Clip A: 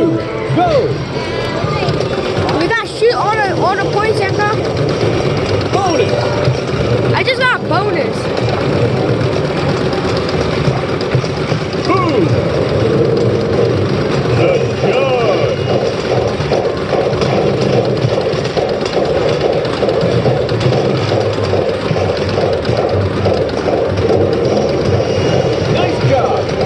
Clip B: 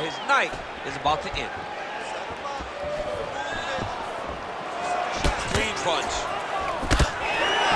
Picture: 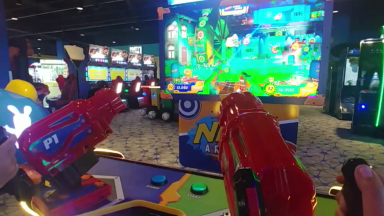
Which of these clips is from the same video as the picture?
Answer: A